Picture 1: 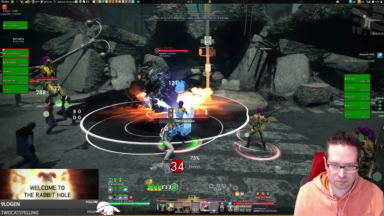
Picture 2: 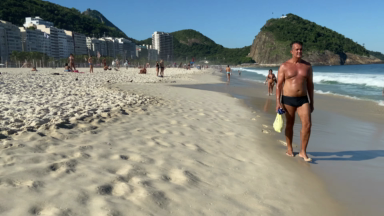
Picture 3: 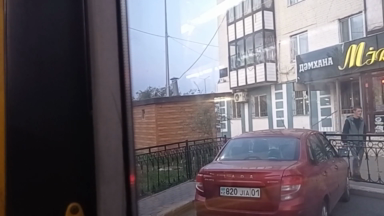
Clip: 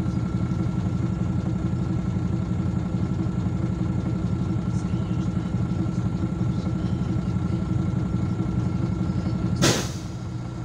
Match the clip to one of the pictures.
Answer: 3